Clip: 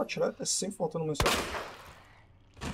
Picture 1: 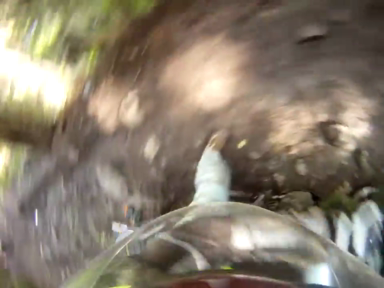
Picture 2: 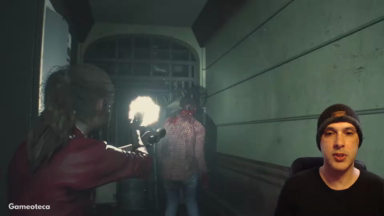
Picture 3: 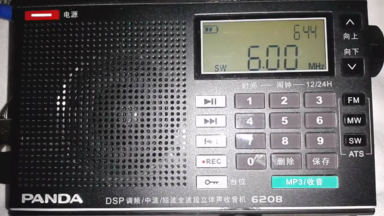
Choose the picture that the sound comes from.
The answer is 2